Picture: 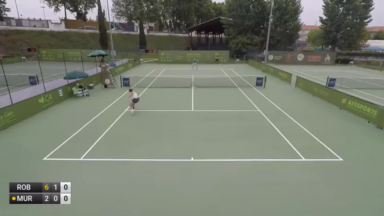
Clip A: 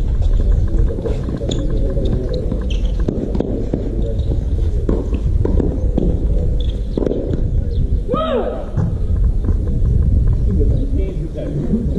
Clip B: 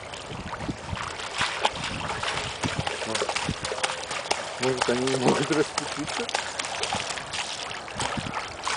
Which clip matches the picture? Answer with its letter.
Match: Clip A